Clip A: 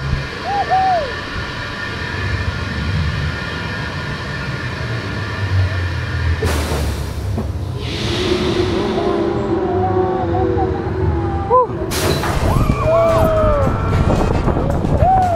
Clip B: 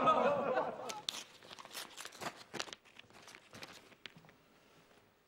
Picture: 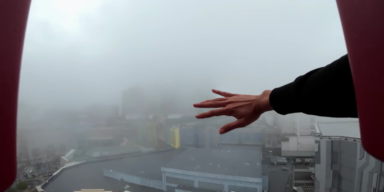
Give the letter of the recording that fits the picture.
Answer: A